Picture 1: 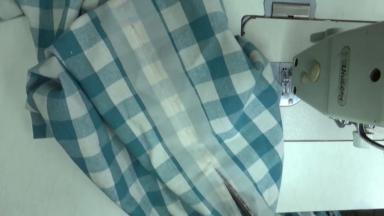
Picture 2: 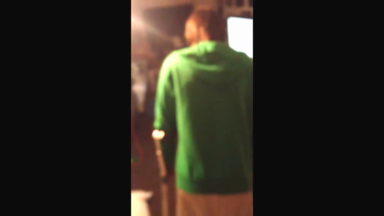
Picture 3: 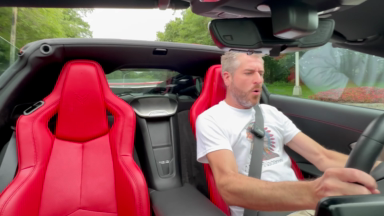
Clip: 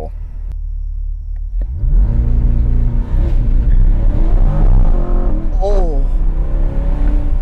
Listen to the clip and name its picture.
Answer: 3